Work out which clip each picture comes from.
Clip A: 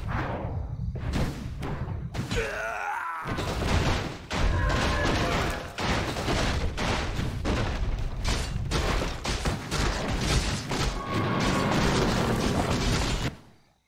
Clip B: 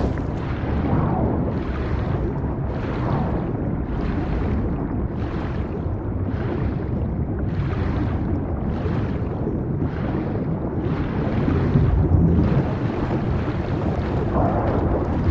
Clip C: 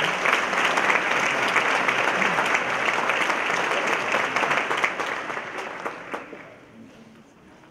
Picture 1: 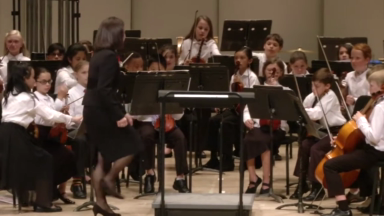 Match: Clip C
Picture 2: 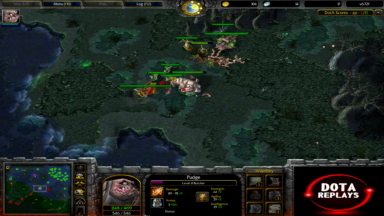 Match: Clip A